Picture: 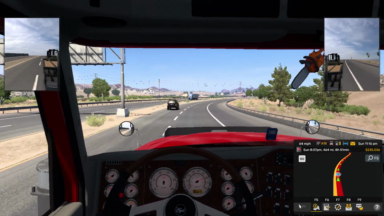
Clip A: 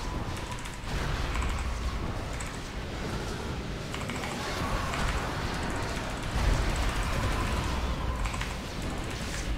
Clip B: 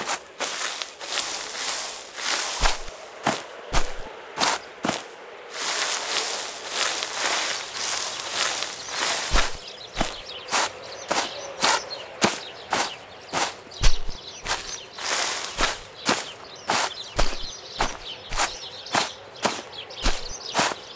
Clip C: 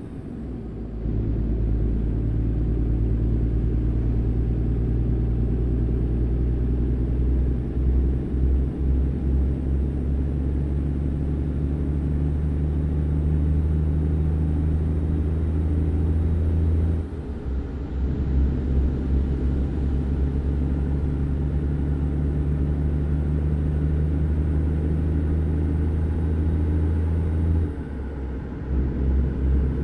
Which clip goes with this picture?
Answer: C